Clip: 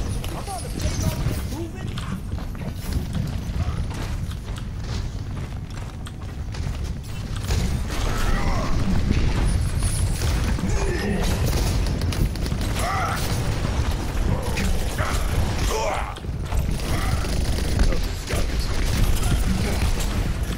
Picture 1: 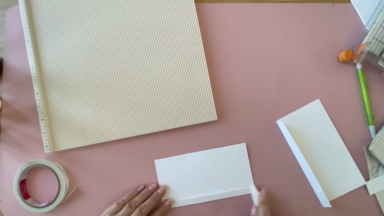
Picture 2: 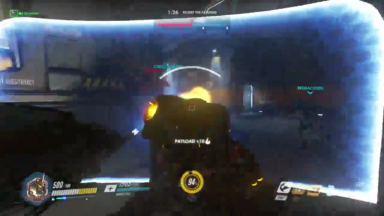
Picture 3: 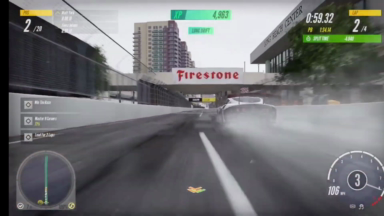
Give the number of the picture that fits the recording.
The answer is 2